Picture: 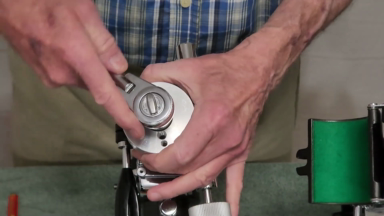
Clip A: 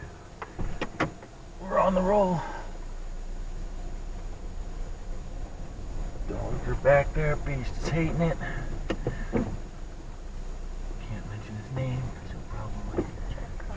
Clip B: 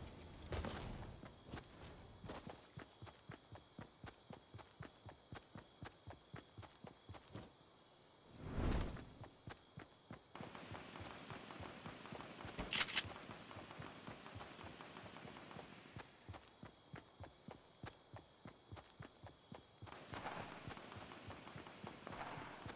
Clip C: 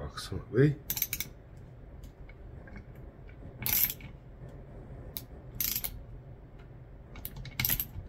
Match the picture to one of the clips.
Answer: C